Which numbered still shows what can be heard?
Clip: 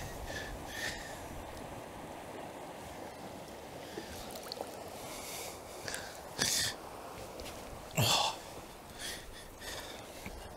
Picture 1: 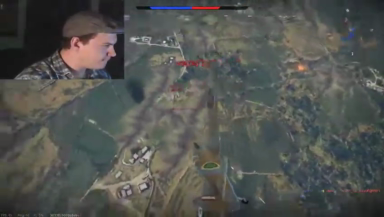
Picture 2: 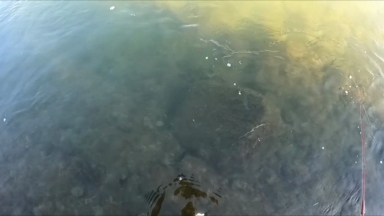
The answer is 2